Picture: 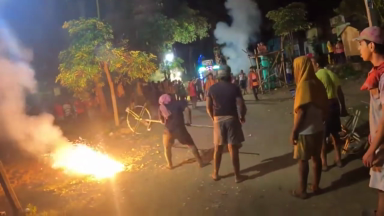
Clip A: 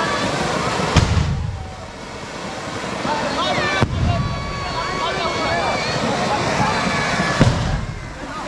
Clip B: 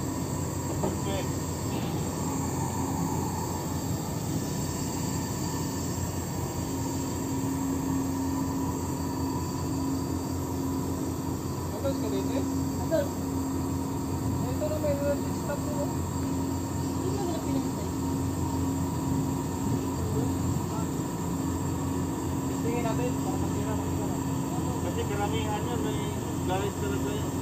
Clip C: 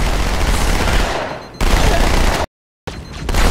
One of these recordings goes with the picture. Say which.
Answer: A